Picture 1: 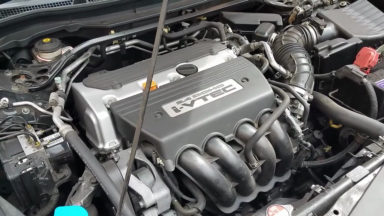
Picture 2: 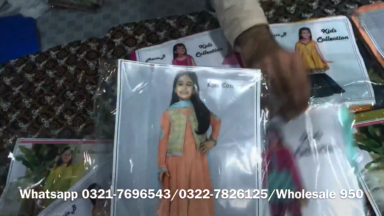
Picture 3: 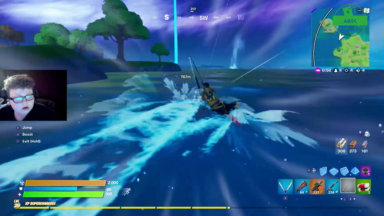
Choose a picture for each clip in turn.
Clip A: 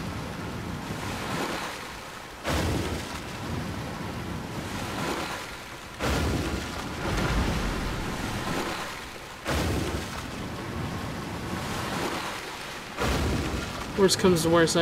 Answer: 3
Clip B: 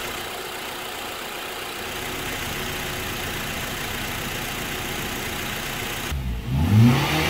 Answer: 1